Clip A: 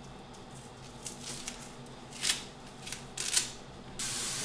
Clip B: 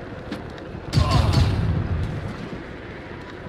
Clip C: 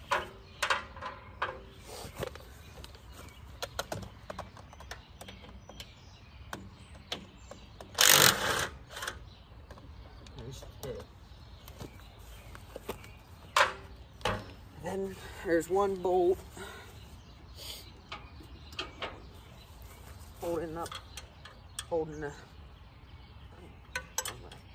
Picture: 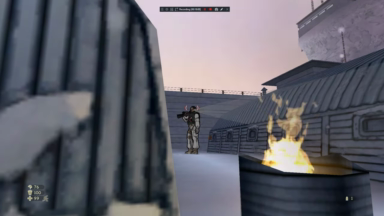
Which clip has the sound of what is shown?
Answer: B